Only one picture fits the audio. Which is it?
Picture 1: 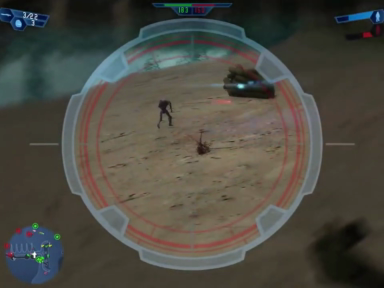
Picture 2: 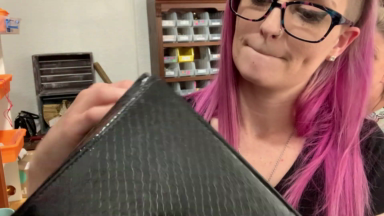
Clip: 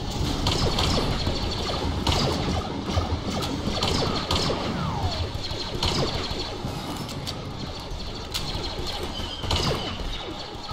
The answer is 1